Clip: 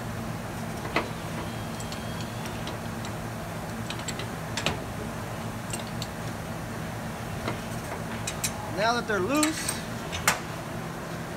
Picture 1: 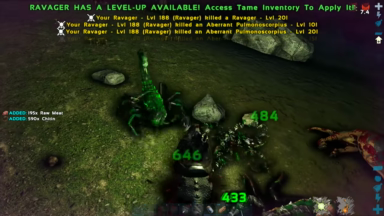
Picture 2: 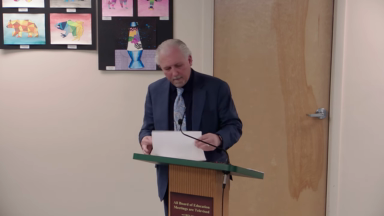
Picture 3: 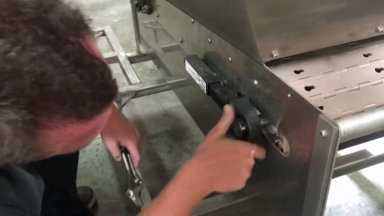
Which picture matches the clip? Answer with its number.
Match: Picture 3